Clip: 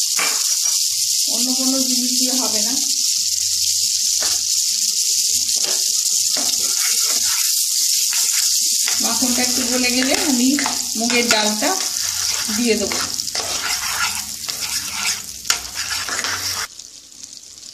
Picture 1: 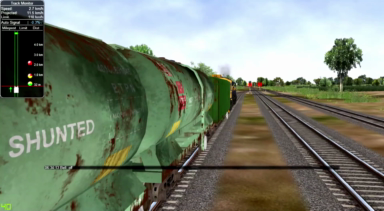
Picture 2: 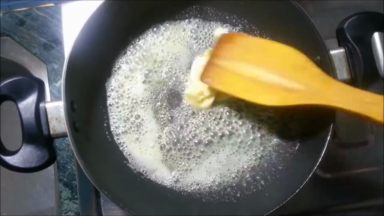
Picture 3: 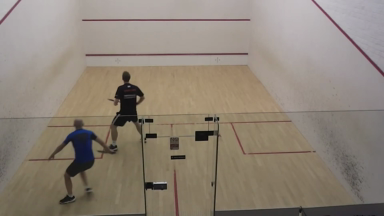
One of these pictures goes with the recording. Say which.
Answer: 2